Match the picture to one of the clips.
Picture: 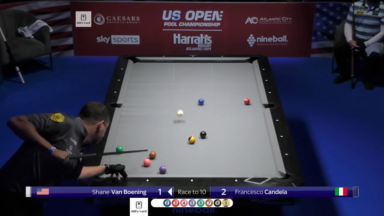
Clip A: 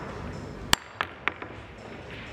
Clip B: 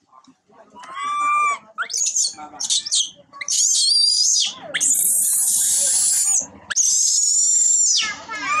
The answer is A